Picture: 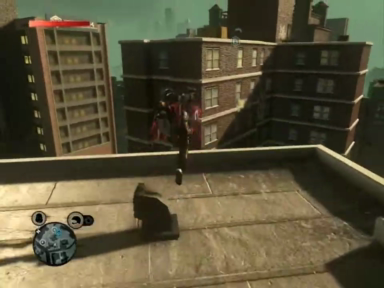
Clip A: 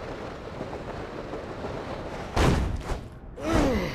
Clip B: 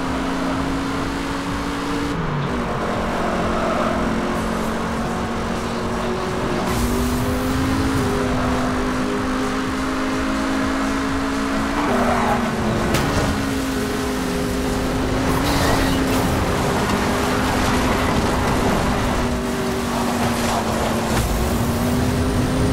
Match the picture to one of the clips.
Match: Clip A